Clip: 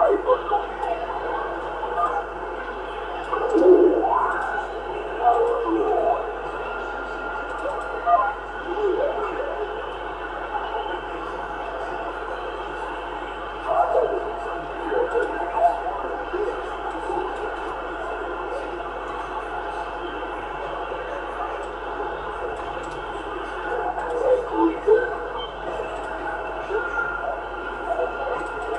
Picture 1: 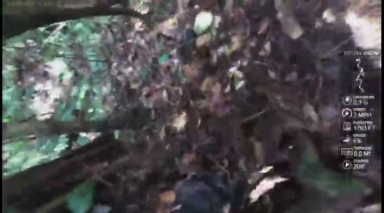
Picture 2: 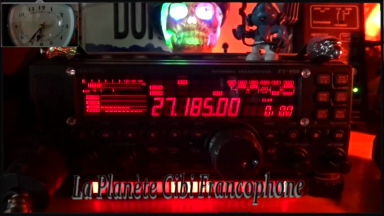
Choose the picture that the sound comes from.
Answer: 2